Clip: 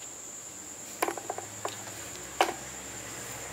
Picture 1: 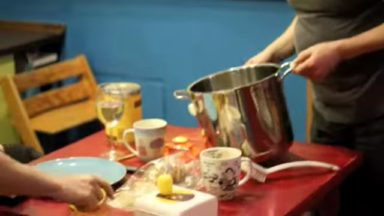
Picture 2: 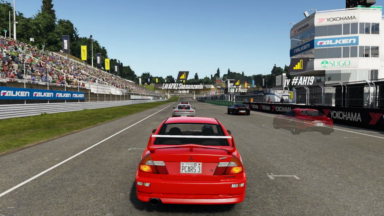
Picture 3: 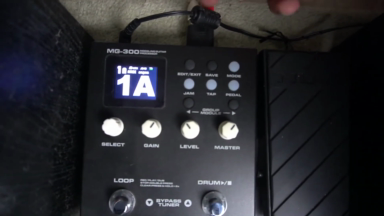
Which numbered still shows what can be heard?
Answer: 3